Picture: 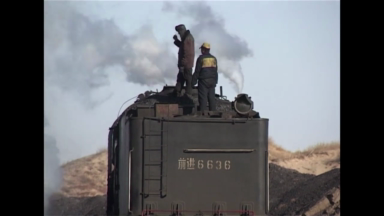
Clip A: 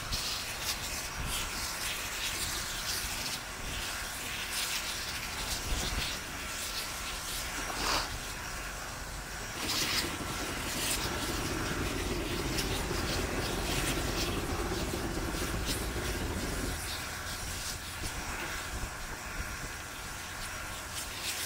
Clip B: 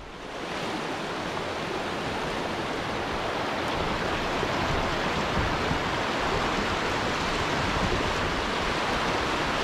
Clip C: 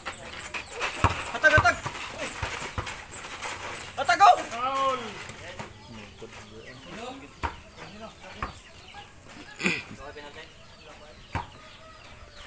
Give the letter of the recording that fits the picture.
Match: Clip A